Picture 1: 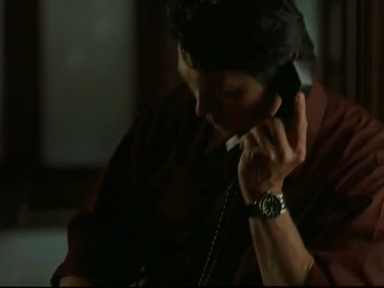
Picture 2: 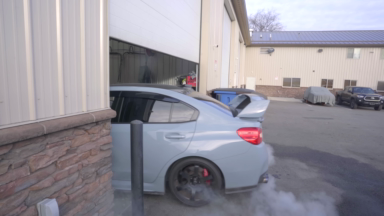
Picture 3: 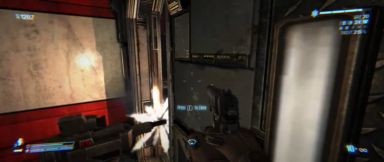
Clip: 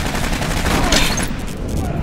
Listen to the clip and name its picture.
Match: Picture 3